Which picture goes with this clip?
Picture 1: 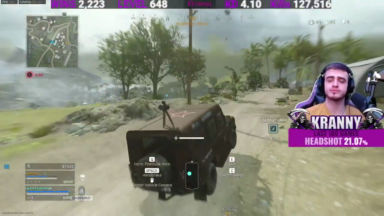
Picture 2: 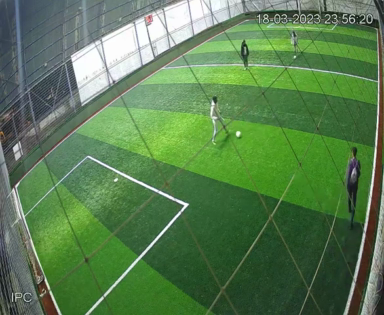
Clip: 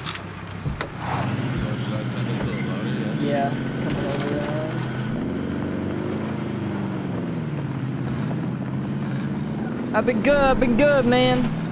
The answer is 1